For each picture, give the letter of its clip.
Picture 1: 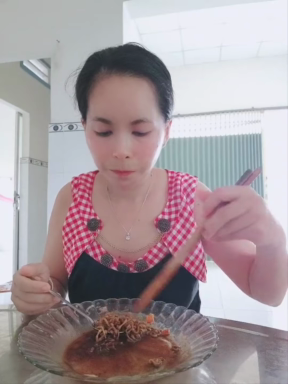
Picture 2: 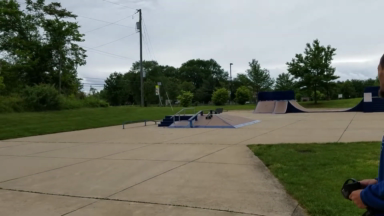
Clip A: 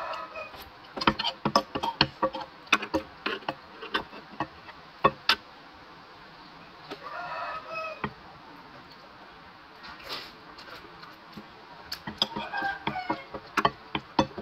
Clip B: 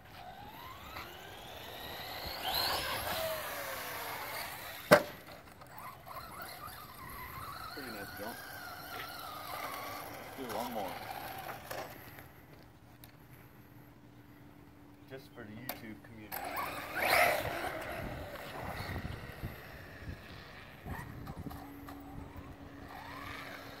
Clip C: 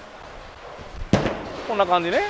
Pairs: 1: A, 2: B